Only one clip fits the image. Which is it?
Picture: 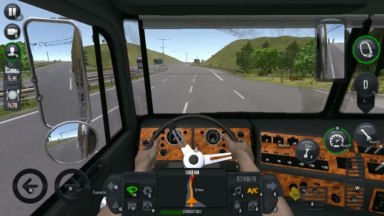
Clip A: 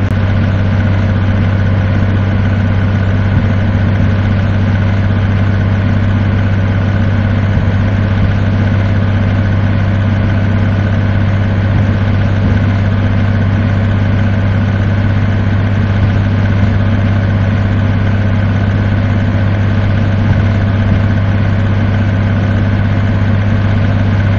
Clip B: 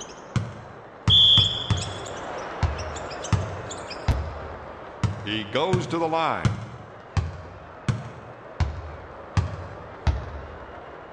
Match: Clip A